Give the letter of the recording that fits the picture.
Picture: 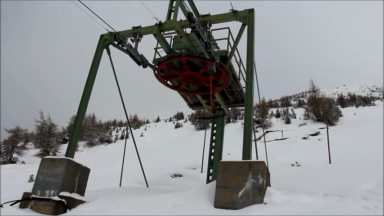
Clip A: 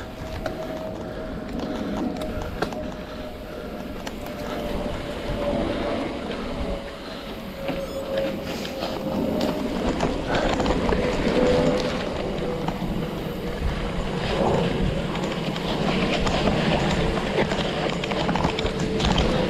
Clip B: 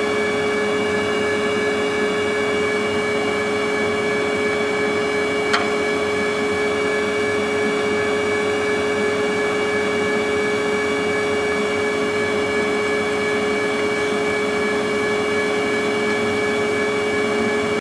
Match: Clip B